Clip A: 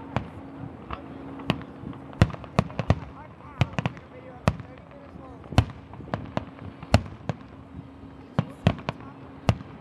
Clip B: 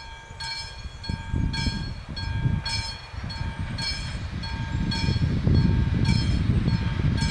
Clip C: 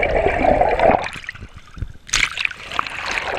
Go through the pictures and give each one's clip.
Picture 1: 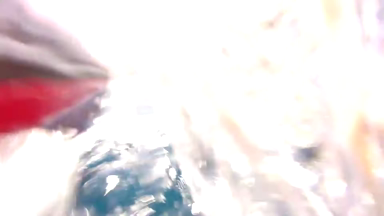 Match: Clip C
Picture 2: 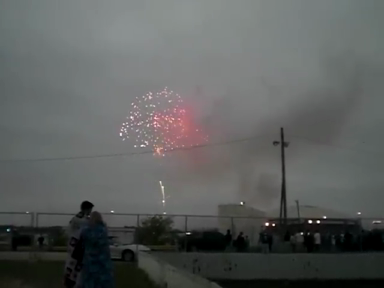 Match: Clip A